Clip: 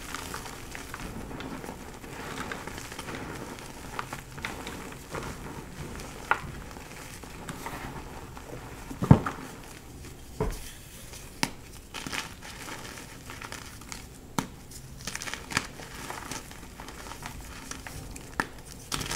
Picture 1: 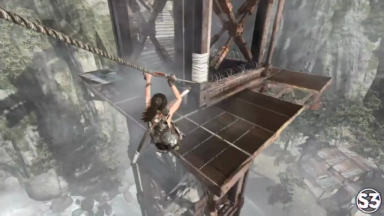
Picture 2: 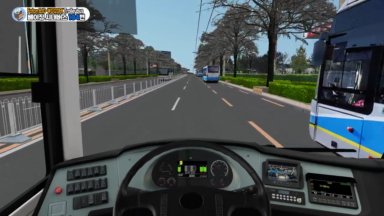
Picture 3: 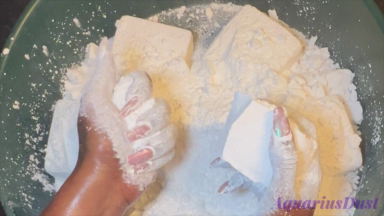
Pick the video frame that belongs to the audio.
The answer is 3